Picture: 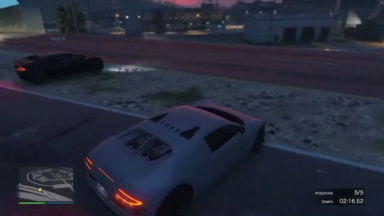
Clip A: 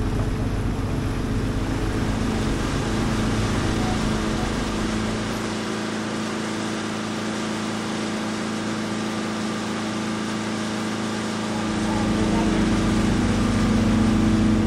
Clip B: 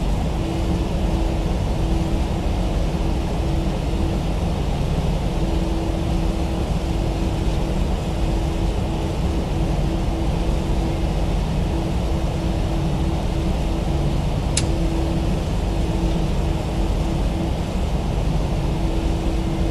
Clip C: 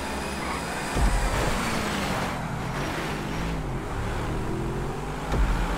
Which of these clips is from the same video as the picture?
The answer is C